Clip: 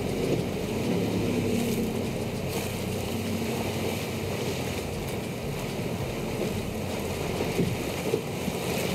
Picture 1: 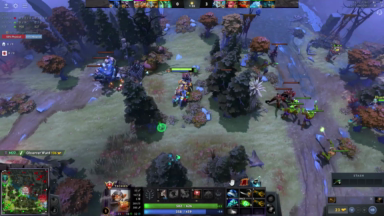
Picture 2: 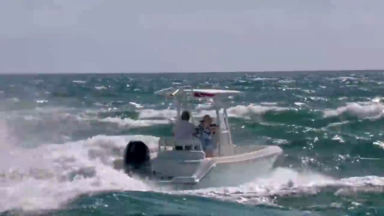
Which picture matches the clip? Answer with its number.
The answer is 2